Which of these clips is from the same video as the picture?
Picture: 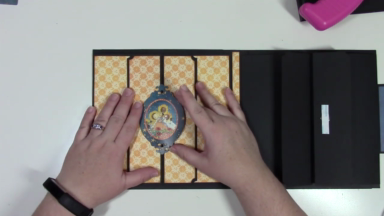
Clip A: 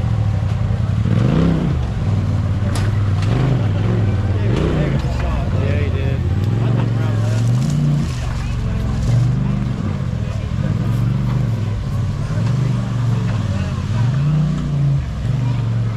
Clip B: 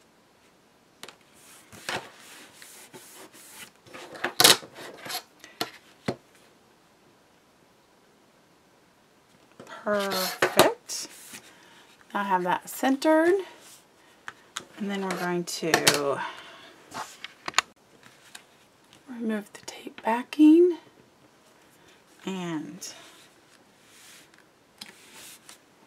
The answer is B